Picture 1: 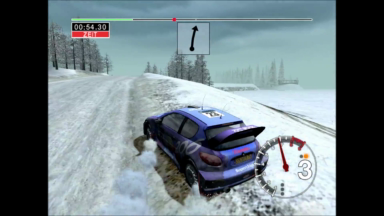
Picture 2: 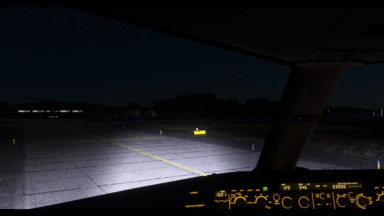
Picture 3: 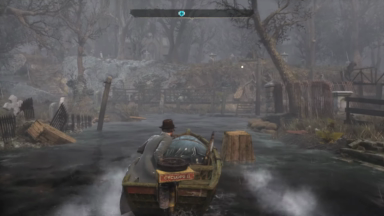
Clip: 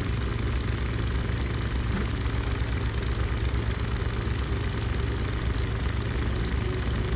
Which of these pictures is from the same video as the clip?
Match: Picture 3